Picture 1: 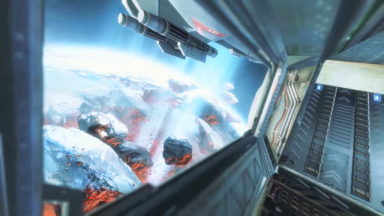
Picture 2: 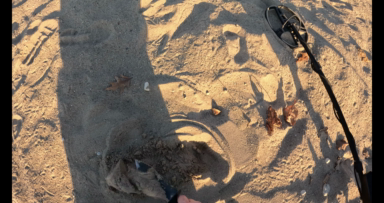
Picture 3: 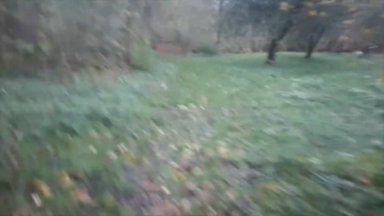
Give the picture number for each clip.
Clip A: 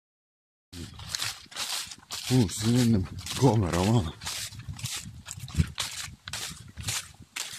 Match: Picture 3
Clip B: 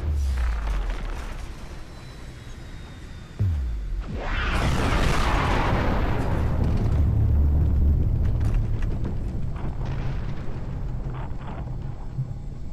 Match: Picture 1